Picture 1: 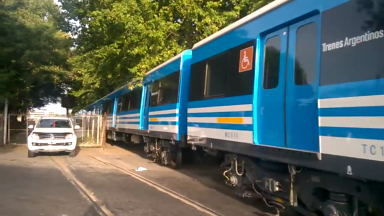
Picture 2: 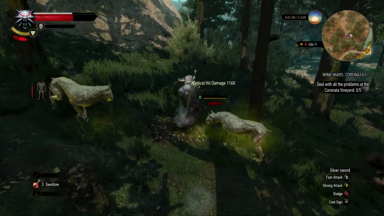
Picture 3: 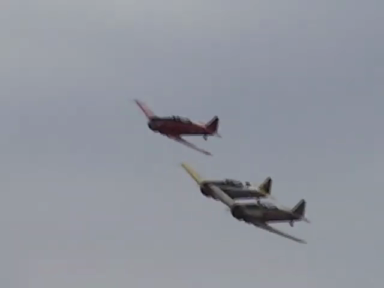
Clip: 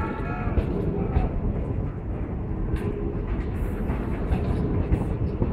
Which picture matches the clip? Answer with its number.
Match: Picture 1